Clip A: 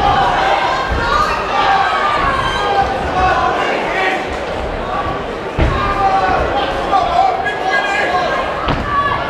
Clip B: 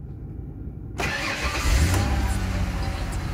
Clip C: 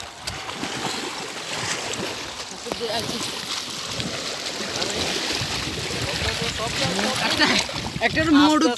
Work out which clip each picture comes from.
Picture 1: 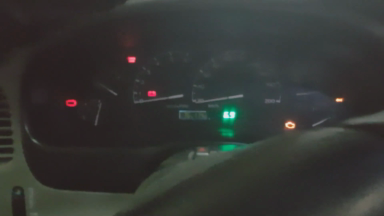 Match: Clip B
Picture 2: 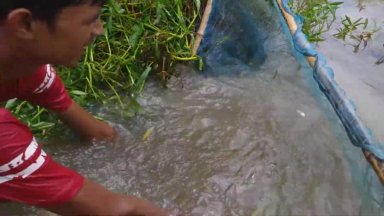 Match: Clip C